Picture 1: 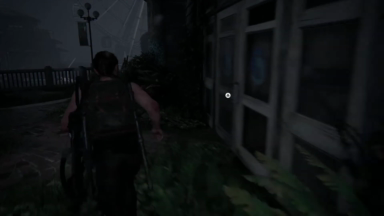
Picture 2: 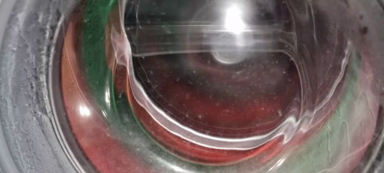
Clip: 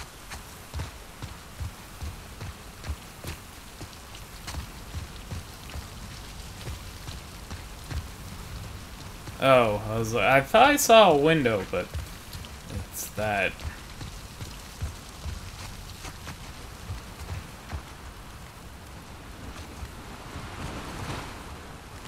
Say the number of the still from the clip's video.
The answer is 1